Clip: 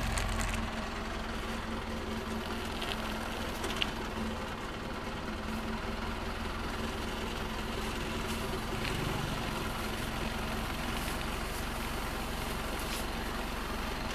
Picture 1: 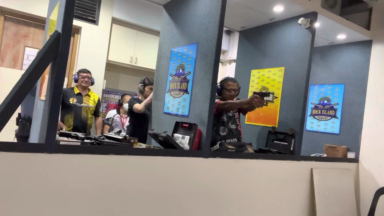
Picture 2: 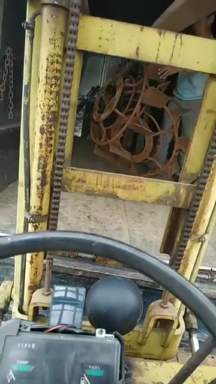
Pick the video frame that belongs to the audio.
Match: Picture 2